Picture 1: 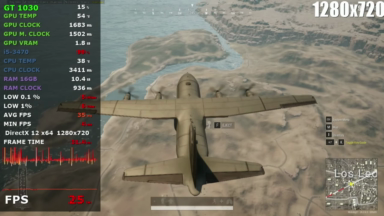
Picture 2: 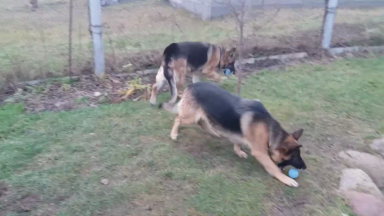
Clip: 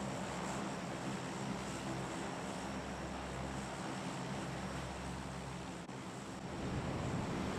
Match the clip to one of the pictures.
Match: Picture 1